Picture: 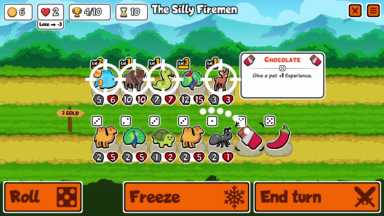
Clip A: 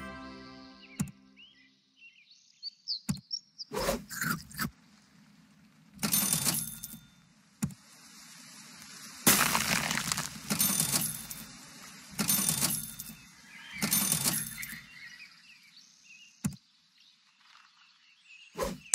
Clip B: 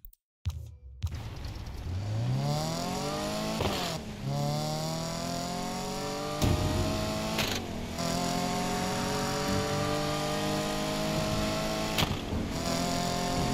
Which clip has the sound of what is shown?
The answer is A